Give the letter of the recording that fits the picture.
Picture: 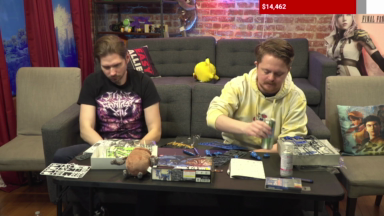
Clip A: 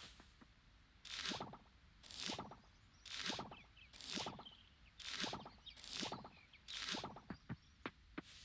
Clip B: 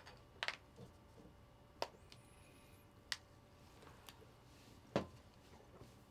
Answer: B